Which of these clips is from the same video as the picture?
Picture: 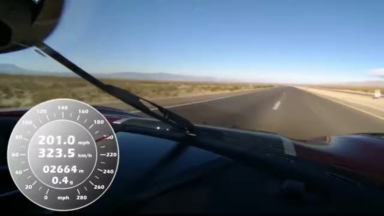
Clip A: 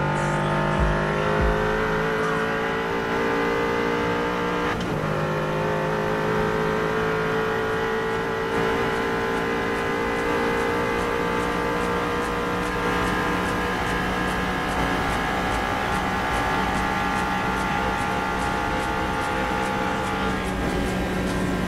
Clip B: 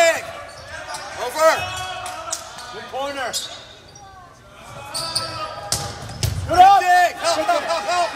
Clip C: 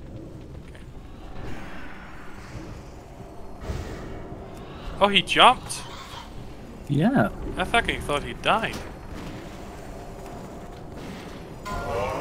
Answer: A